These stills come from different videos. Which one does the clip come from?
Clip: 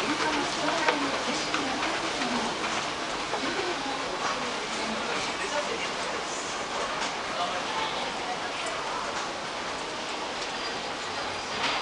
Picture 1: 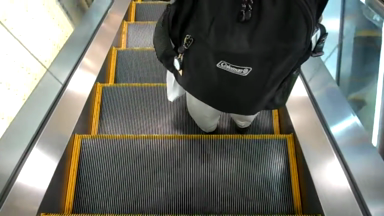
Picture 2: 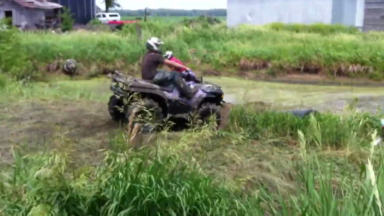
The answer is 1